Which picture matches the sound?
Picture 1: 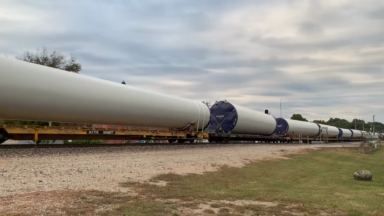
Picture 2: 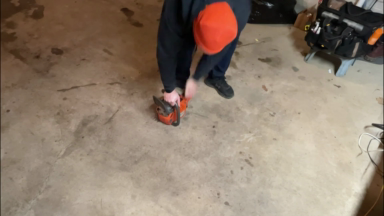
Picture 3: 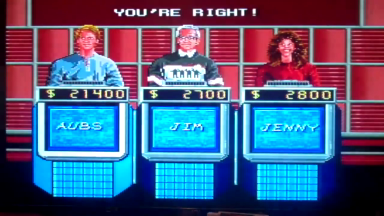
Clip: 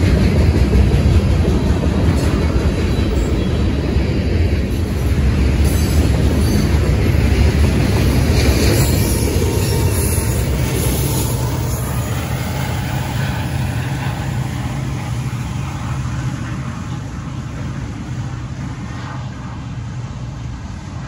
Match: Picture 1